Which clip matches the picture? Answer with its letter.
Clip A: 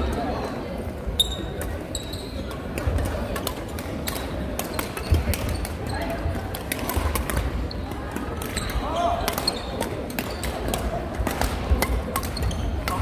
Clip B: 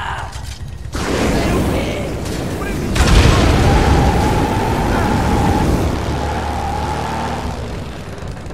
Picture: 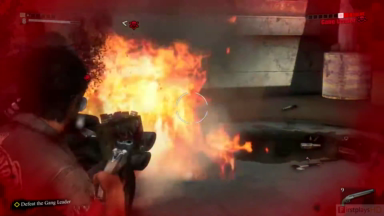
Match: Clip B